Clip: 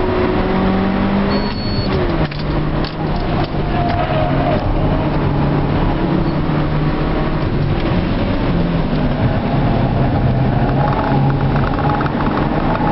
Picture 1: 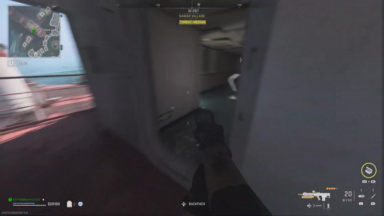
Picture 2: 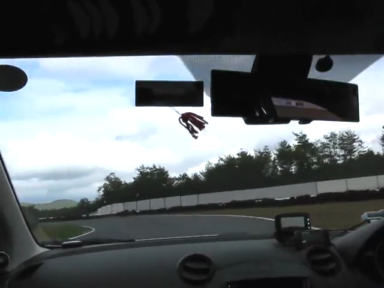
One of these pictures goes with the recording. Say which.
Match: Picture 2